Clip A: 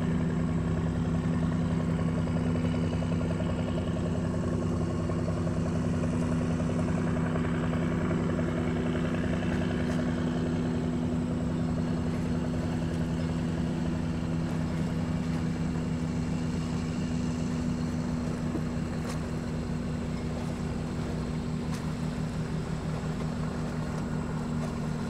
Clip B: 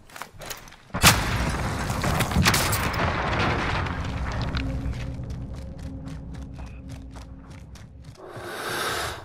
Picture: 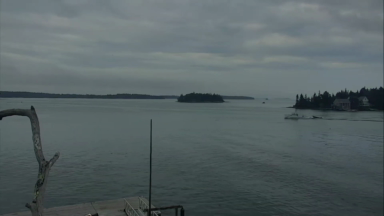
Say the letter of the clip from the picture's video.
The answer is A